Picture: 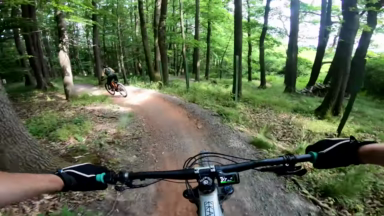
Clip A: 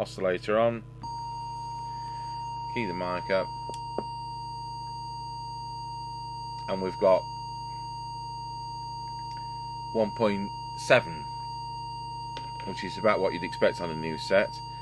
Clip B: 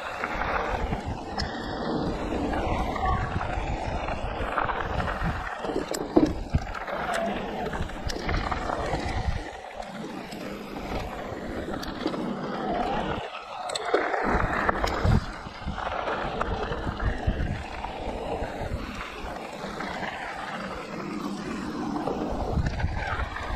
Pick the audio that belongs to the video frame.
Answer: B